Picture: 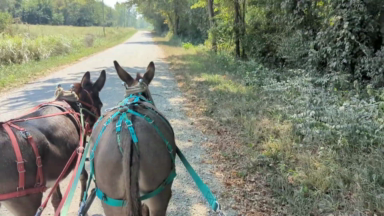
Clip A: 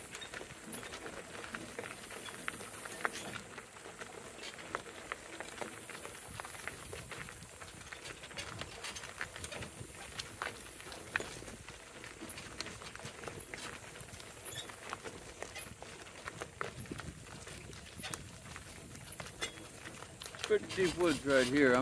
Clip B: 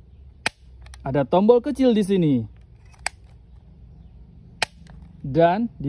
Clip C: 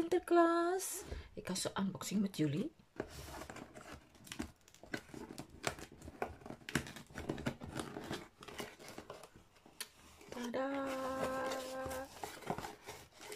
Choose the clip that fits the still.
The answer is A